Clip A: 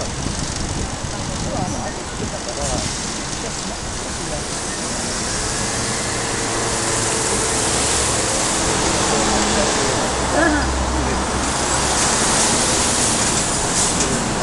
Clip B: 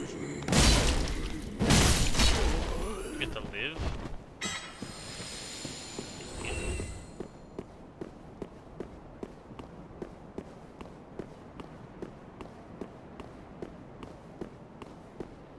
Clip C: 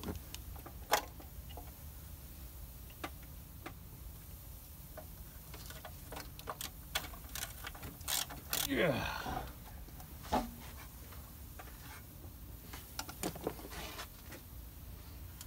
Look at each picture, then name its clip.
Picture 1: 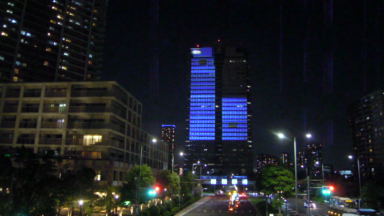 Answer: A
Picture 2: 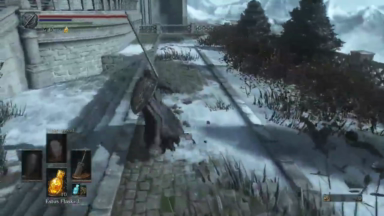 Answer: B